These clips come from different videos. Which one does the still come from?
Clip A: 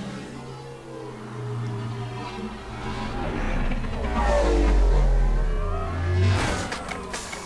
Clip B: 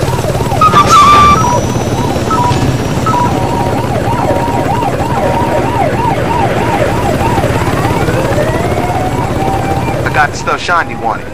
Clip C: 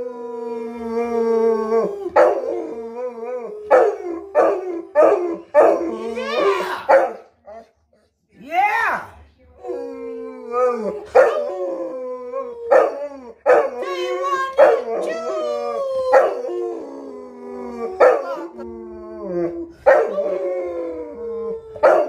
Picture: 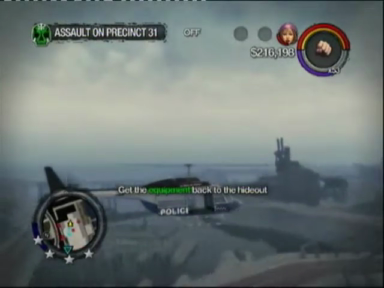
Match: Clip B